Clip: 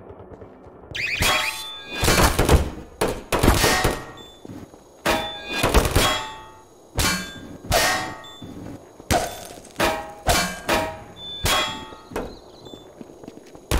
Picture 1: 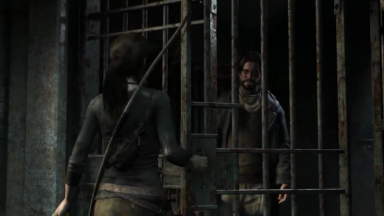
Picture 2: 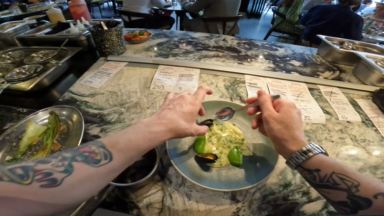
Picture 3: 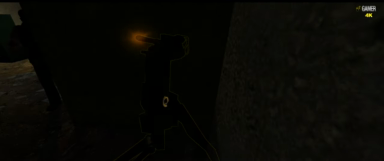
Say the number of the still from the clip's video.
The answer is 3